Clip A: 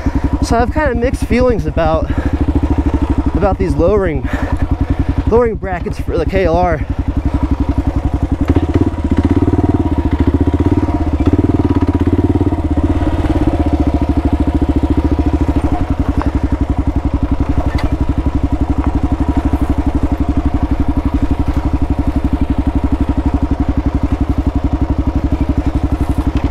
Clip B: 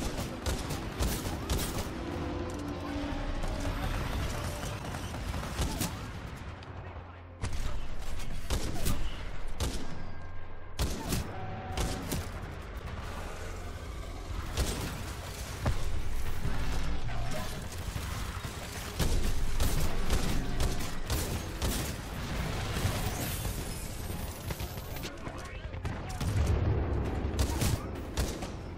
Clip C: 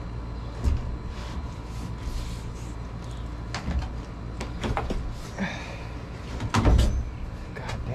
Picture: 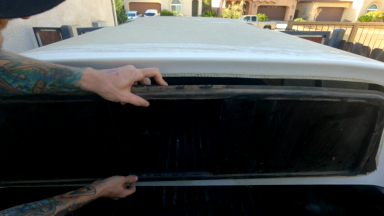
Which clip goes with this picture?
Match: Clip C